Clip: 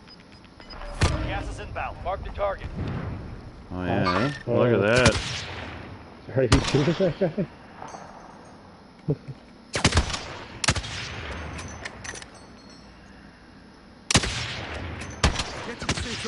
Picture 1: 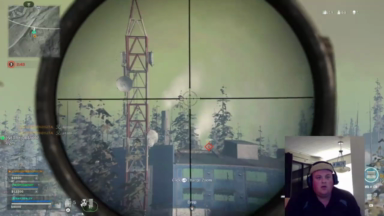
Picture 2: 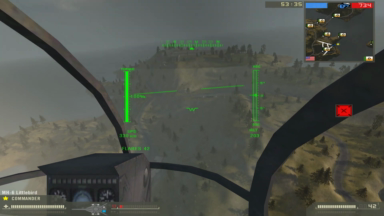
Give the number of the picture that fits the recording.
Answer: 1